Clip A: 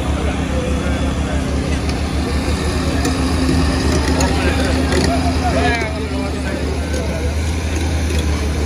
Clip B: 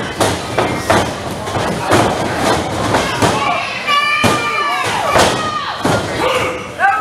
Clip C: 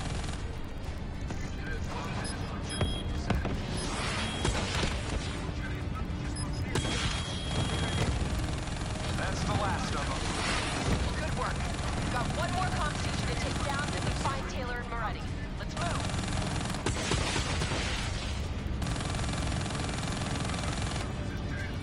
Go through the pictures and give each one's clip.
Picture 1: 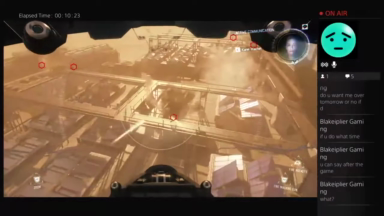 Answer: C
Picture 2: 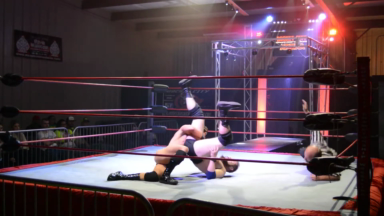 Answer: B